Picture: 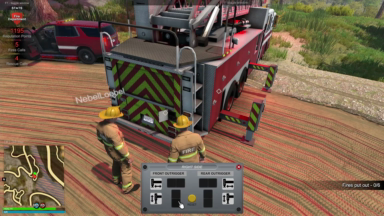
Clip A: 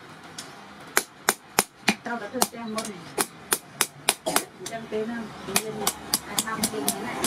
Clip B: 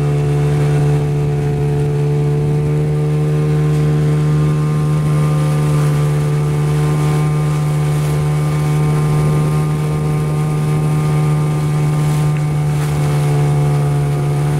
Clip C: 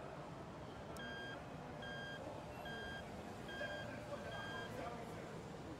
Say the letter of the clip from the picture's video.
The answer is C